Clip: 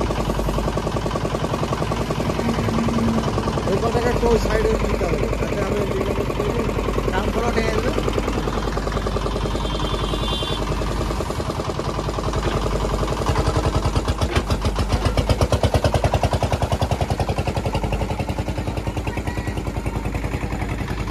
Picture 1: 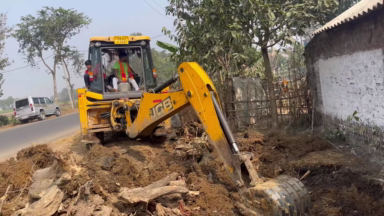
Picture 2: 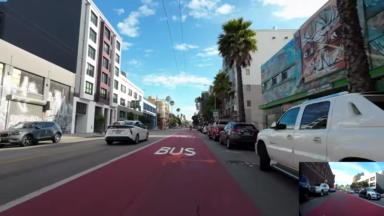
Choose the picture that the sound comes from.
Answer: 1